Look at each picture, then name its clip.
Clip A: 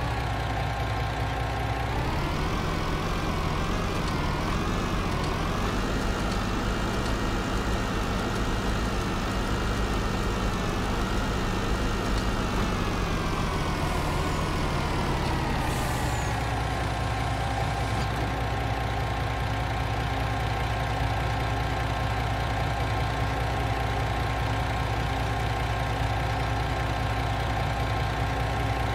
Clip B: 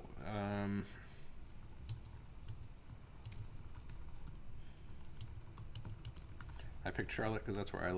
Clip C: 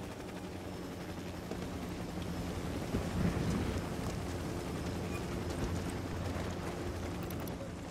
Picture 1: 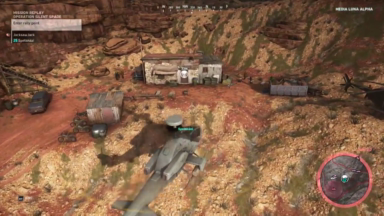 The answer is C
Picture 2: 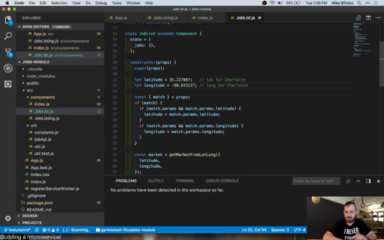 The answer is B